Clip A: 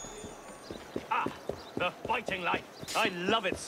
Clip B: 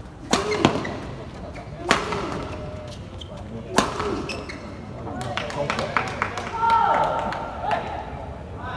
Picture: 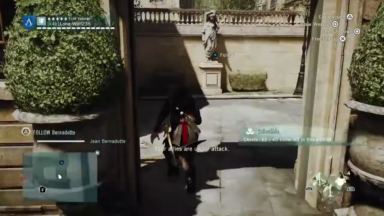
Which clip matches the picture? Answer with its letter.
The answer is A